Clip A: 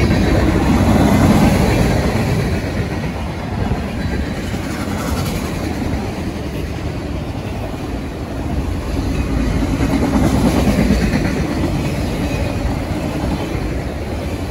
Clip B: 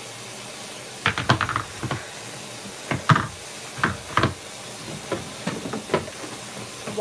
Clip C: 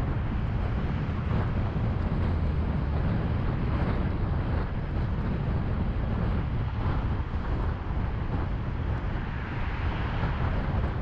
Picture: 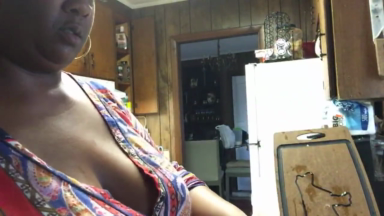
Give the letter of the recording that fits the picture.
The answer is B